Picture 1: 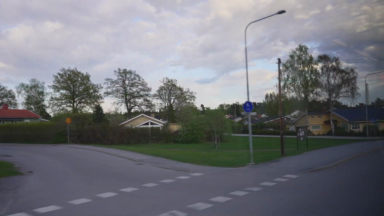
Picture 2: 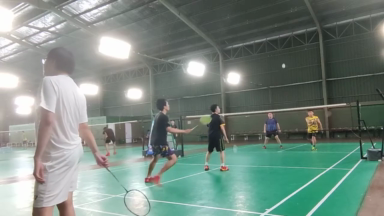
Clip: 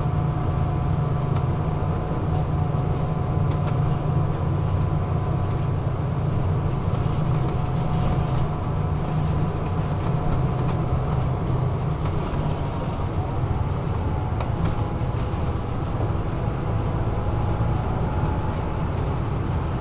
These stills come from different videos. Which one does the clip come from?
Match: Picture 1